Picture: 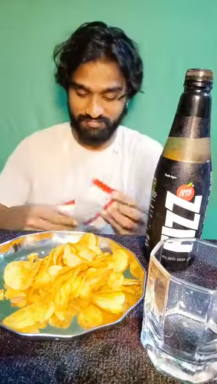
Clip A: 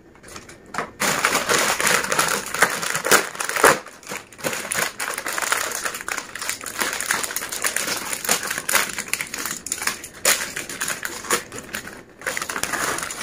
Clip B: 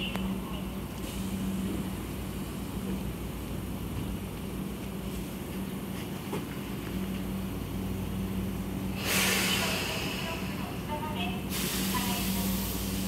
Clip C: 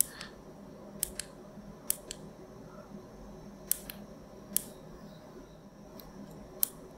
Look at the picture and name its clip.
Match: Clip A